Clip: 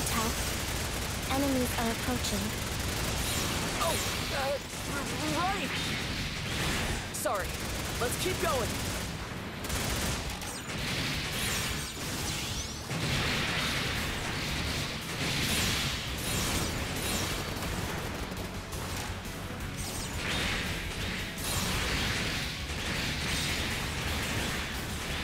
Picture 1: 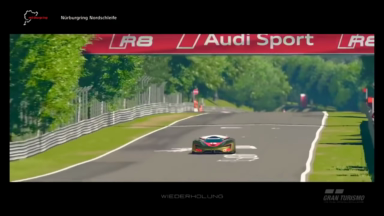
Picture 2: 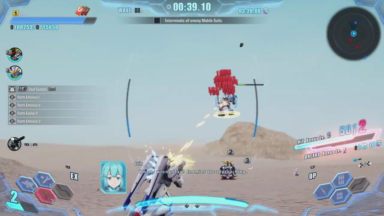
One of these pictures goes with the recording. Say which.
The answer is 2